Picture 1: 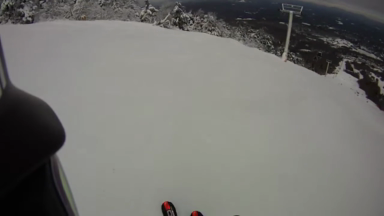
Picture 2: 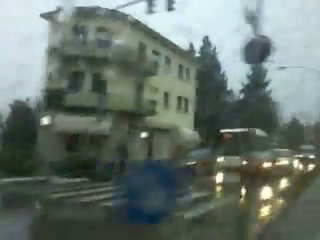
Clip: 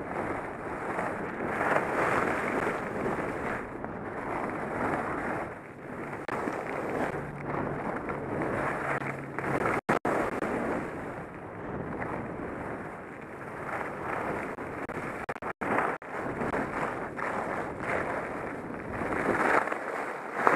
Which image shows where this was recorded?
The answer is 1